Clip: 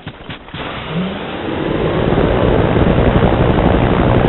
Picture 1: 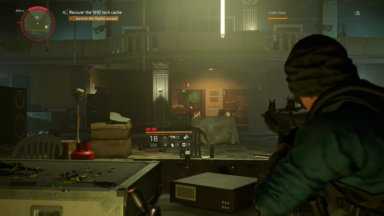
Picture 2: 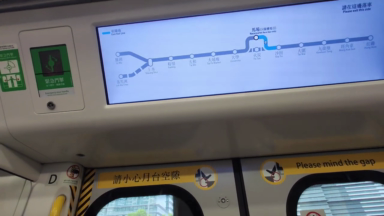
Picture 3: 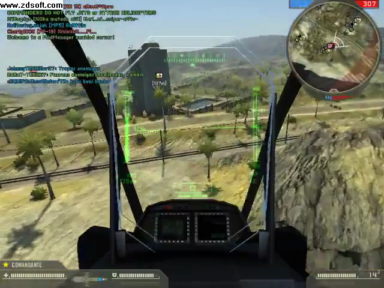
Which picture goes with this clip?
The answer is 3